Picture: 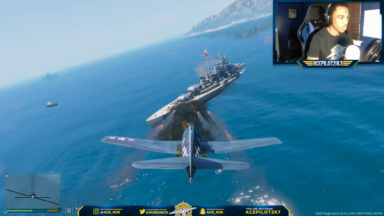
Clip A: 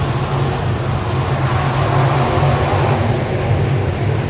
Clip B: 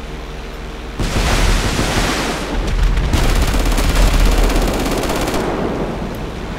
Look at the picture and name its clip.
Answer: B